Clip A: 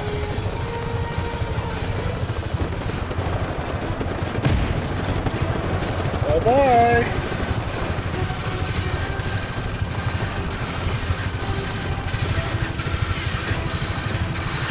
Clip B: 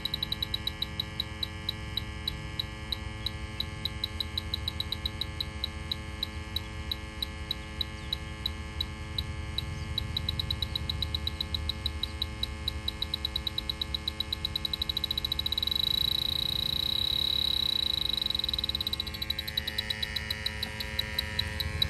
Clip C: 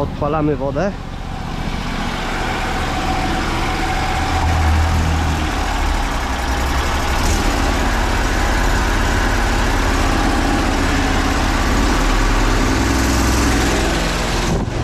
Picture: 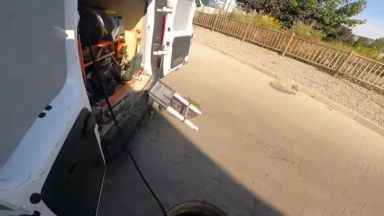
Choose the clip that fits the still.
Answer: C